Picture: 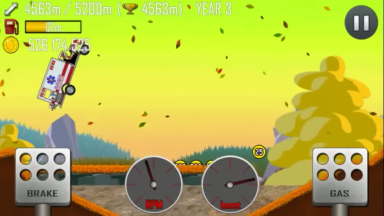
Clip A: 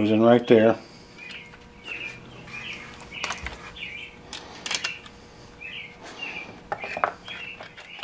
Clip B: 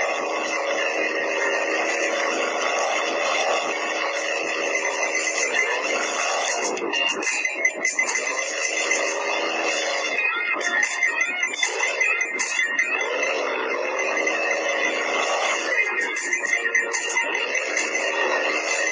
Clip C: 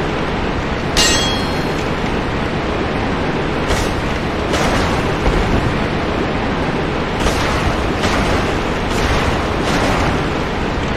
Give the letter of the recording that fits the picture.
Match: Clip B